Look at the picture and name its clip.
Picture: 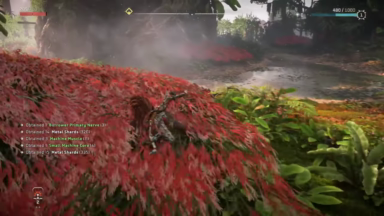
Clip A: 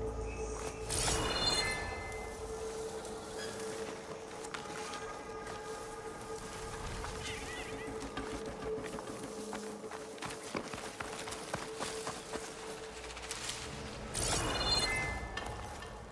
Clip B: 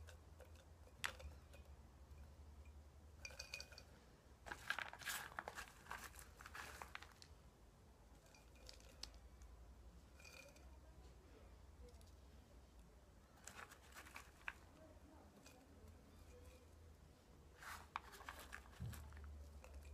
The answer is A